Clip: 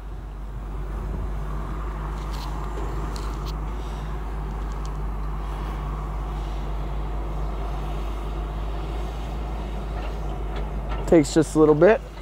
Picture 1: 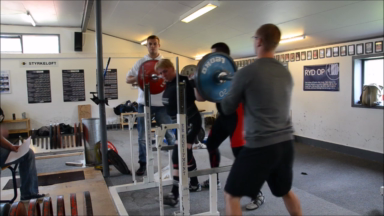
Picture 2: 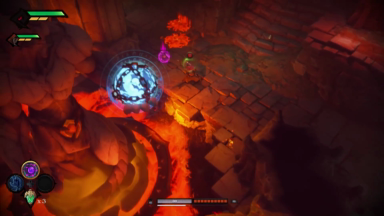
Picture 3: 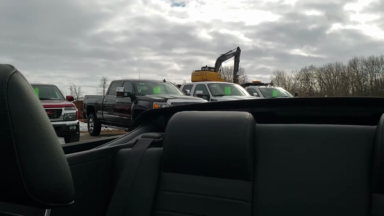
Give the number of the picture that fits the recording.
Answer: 3